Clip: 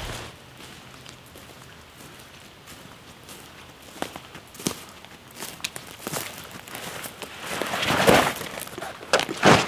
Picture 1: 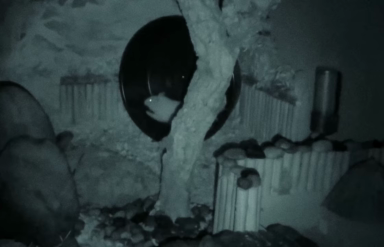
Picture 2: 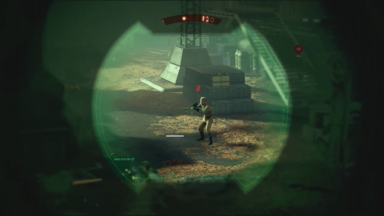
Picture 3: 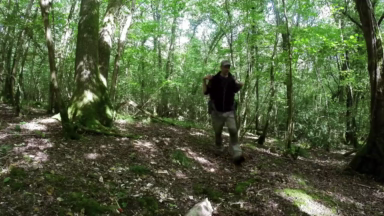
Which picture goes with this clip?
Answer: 3